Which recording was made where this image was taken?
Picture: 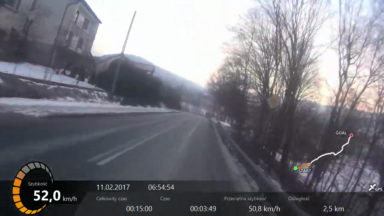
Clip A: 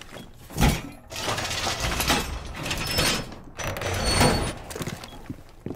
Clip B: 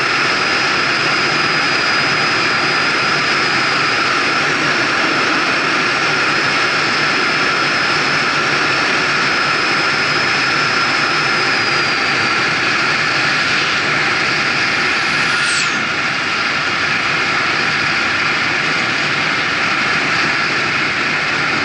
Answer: B